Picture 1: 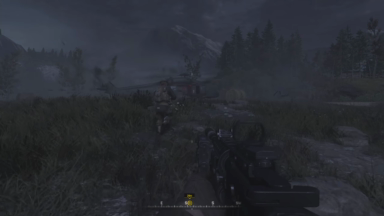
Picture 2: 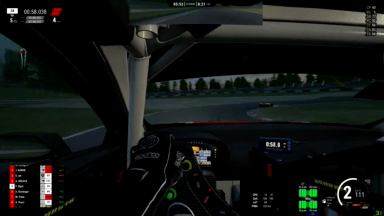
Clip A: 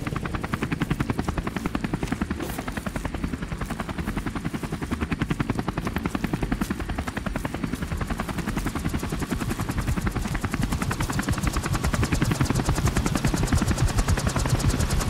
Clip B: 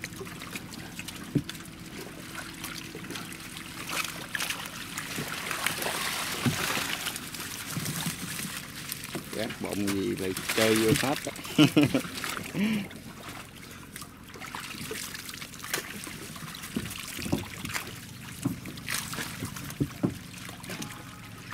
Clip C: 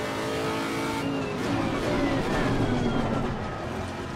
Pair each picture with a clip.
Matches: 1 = A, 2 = C